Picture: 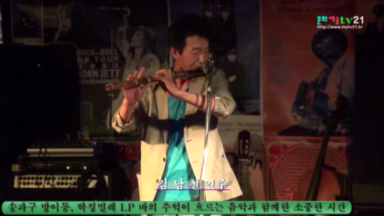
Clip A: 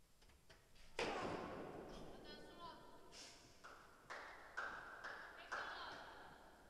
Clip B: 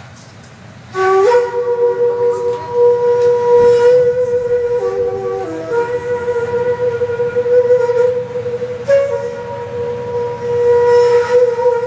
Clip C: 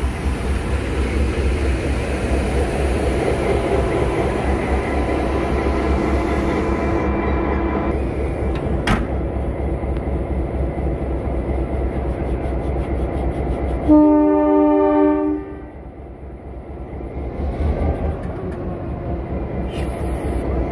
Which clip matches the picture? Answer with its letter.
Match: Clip B